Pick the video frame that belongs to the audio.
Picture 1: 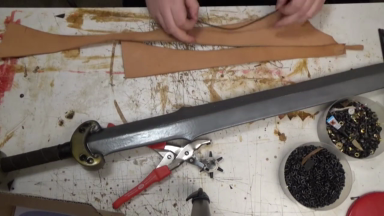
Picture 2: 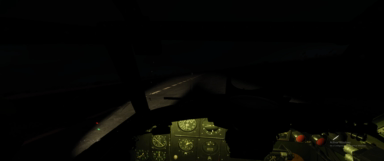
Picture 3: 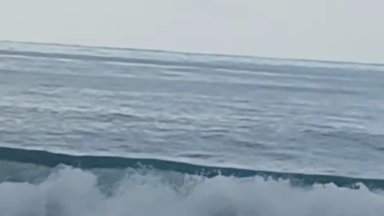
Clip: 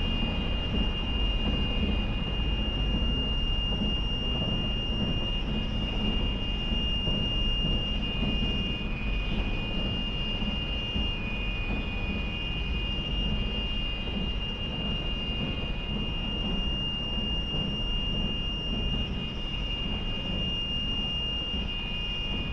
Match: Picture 2